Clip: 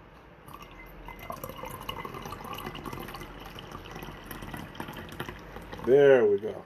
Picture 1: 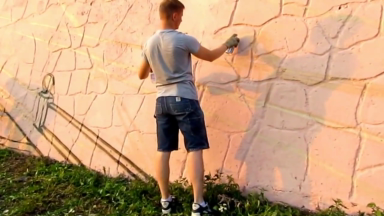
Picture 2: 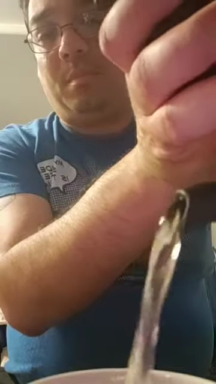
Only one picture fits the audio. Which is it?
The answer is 2